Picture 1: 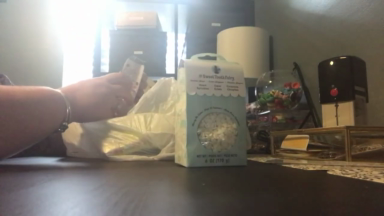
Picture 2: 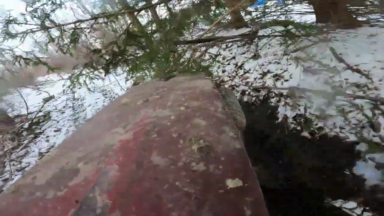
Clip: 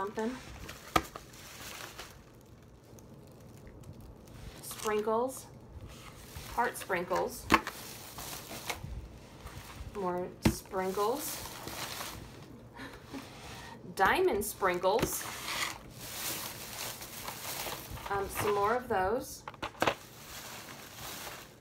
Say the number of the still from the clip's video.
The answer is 1